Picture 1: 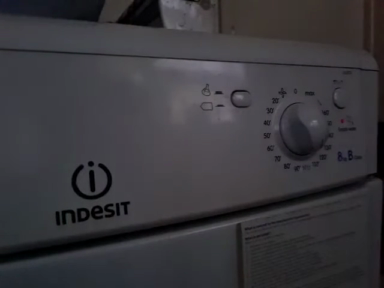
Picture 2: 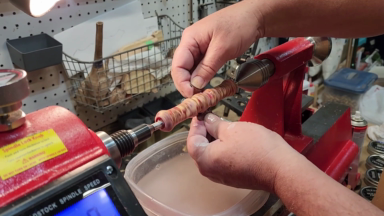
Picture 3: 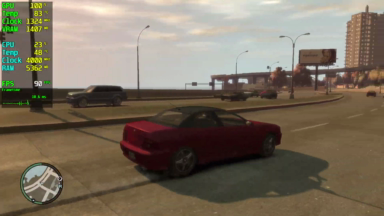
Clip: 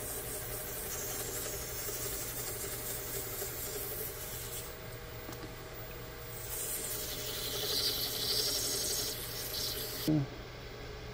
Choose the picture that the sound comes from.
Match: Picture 2